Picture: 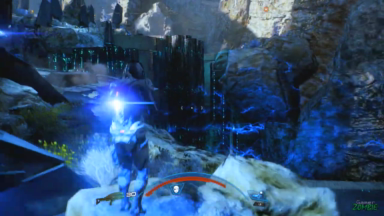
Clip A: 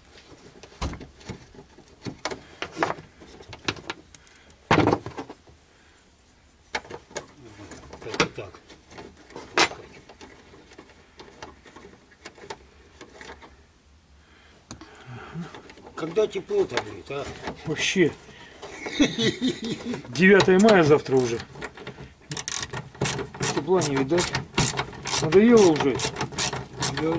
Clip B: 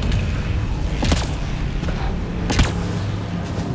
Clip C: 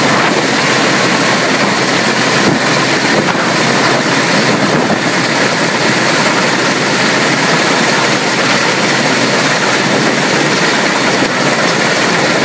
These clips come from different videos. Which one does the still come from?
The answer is B